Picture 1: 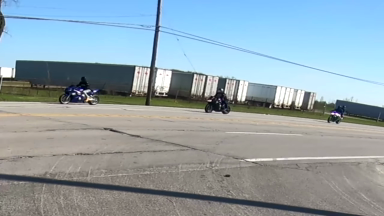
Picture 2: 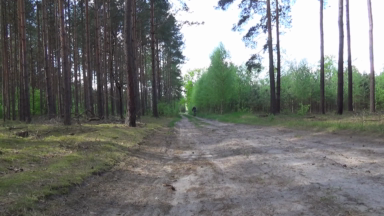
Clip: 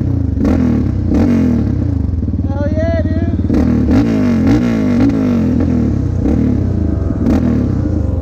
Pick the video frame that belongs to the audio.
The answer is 1